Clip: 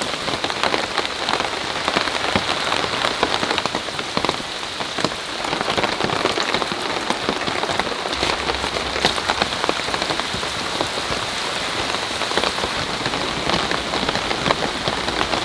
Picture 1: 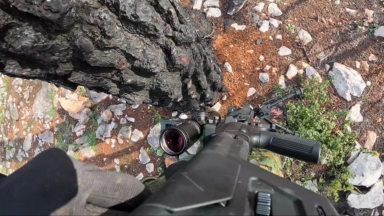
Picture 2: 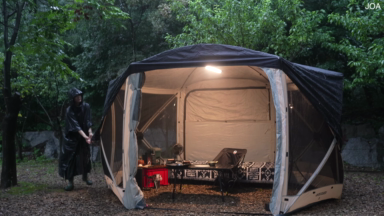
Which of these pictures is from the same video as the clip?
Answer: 2